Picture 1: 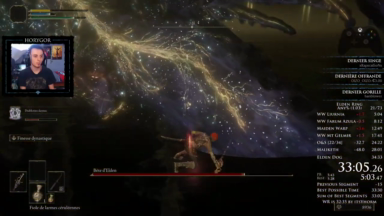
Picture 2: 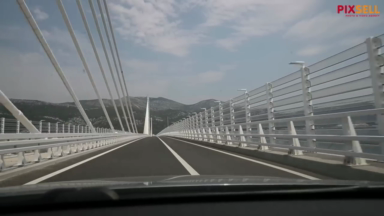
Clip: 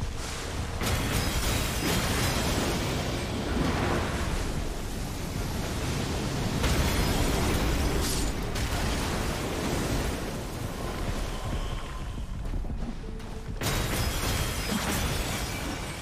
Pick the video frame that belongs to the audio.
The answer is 1